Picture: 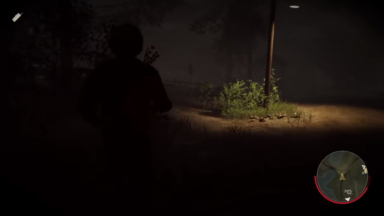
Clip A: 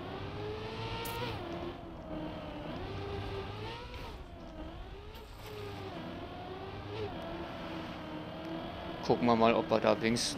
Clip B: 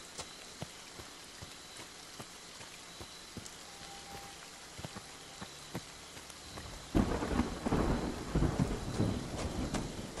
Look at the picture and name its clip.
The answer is B